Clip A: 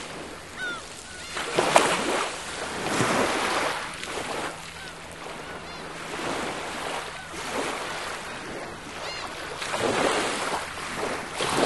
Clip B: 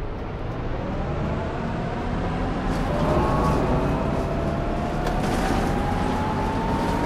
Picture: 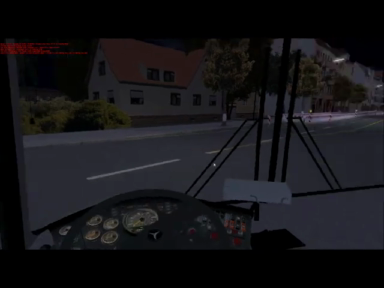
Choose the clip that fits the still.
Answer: B